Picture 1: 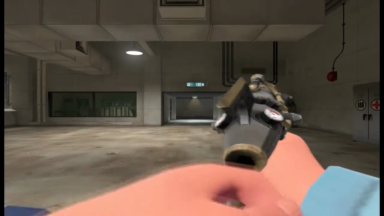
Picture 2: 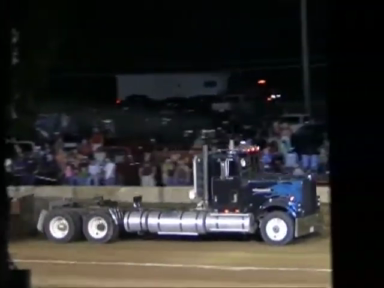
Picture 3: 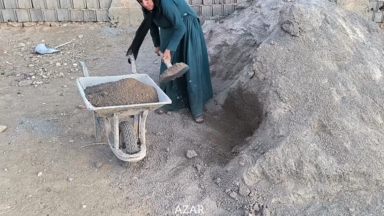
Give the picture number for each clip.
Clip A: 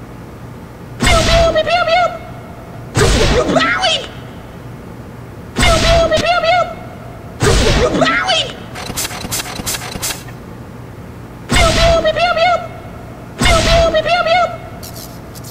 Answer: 1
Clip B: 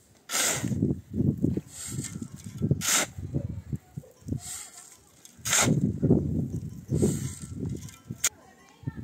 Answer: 3